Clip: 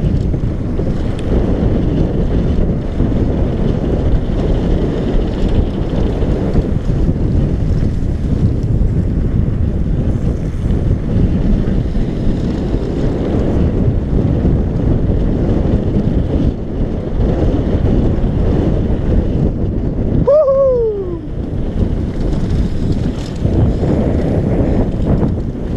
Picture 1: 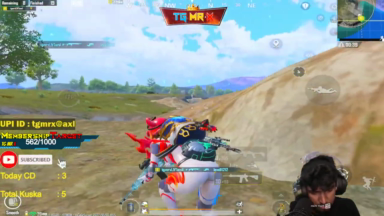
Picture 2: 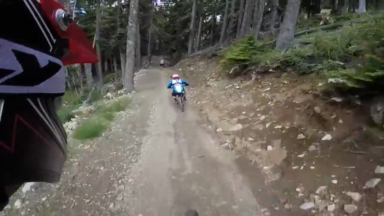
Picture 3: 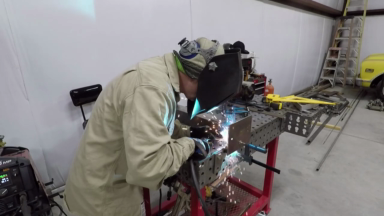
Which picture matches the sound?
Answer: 2